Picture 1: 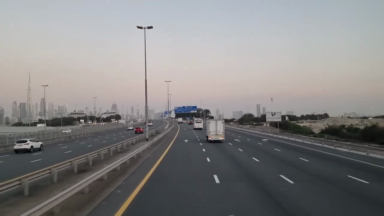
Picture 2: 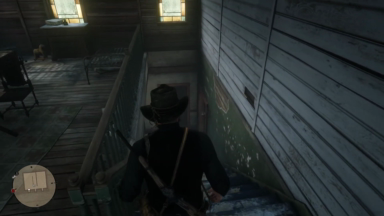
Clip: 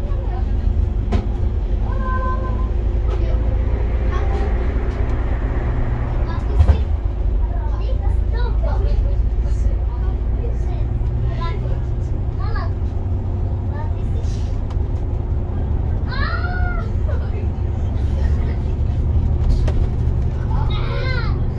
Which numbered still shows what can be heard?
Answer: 1